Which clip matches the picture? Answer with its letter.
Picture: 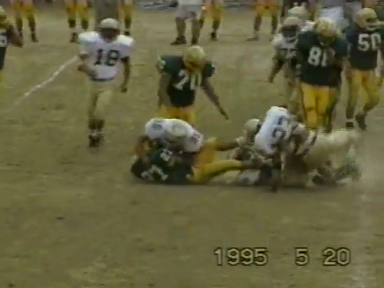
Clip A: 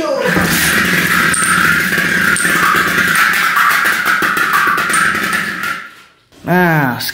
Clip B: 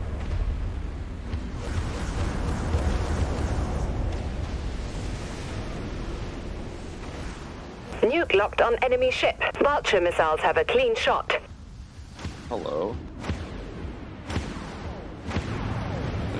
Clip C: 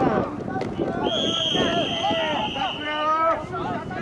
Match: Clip C